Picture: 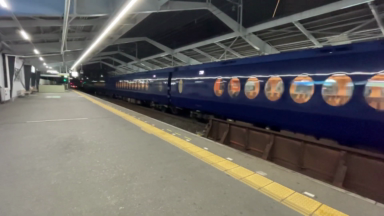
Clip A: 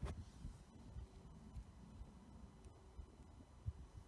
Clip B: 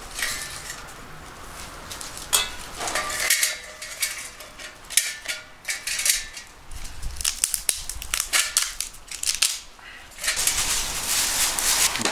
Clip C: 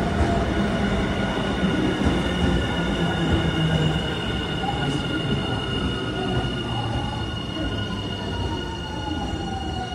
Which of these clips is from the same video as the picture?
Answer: C